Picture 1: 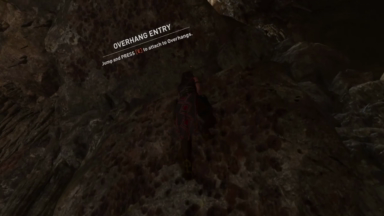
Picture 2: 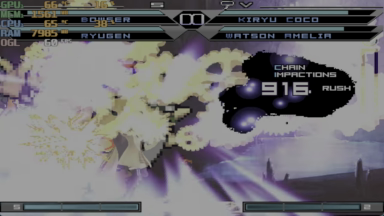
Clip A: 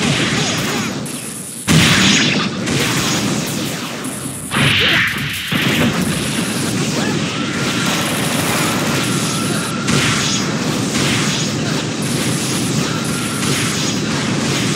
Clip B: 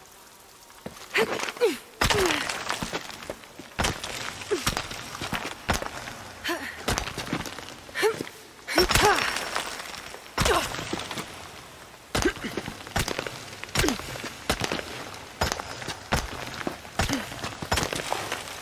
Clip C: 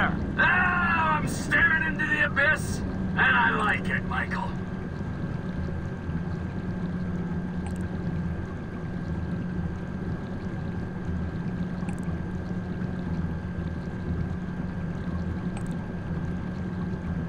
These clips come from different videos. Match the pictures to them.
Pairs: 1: B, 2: A